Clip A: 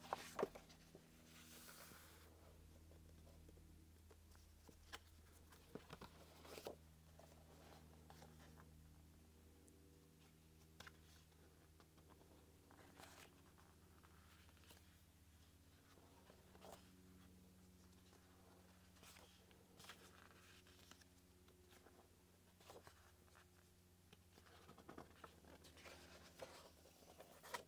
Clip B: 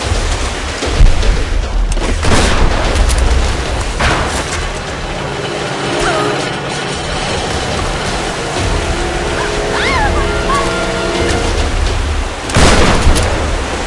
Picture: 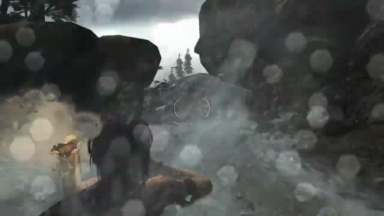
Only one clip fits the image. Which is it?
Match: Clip B